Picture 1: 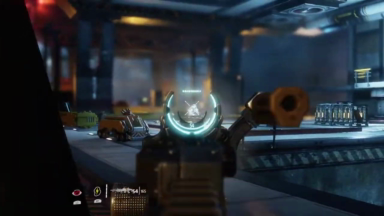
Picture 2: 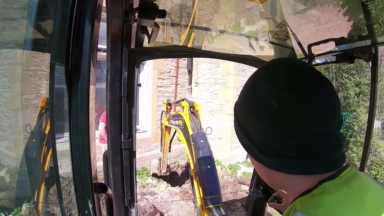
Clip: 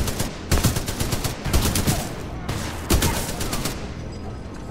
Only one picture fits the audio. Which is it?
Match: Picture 1